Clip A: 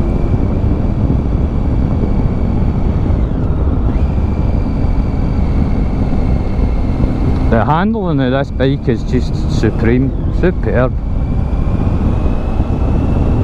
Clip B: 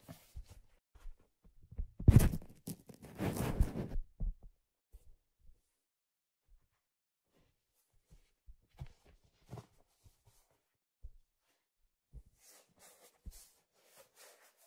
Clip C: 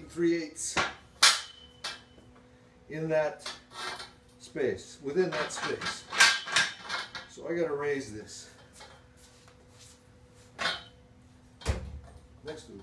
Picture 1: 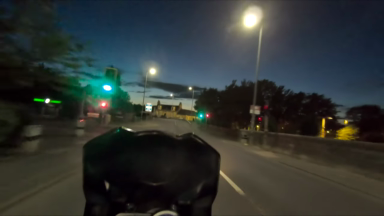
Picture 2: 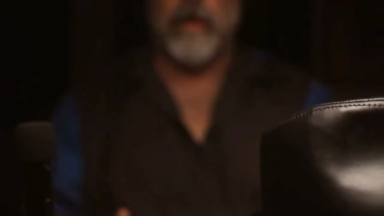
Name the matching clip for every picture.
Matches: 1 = A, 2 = B